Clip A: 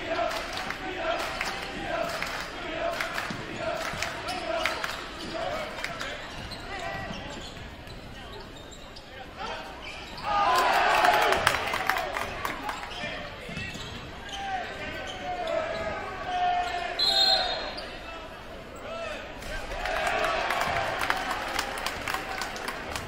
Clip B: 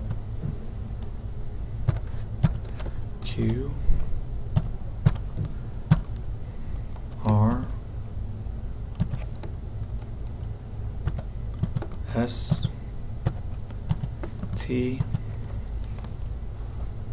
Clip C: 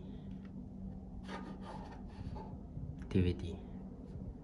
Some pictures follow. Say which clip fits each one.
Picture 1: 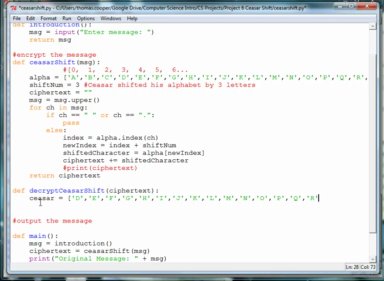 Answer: B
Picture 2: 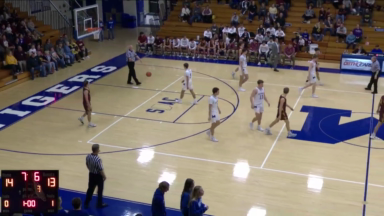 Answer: A